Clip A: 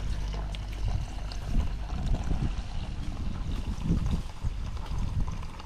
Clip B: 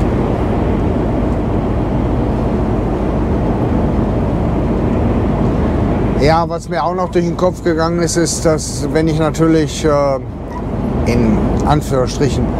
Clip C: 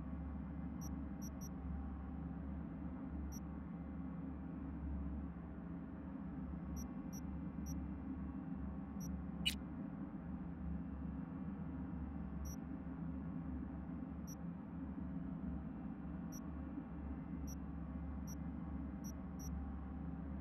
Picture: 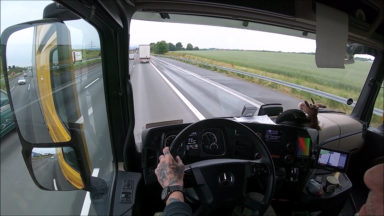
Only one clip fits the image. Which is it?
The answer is B